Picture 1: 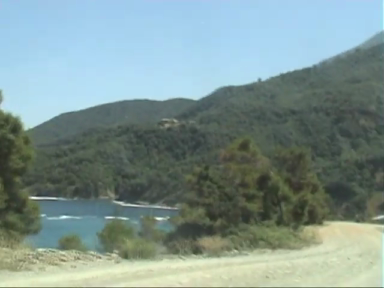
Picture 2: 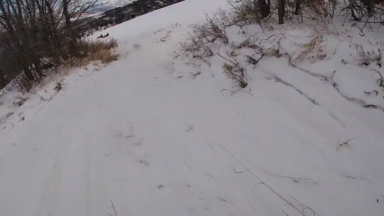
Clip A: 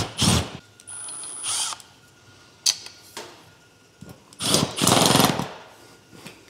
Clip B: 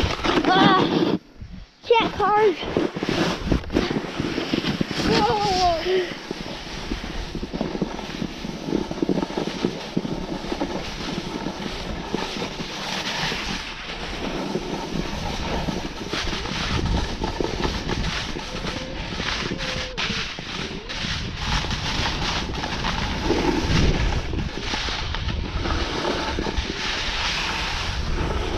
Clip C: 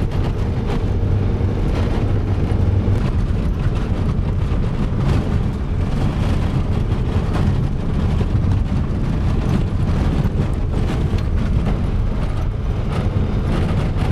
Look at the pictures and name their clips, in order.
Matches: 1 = C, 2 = B